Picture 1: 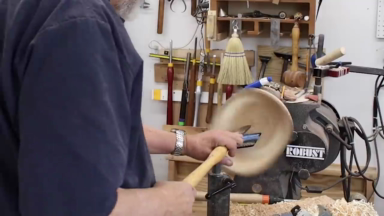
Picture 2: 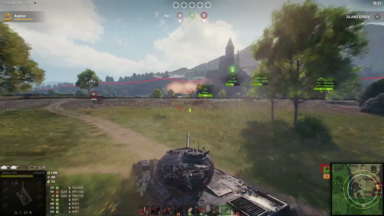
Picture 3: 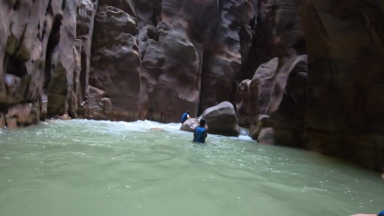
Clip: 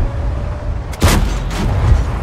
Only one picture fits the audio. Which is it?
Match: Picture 2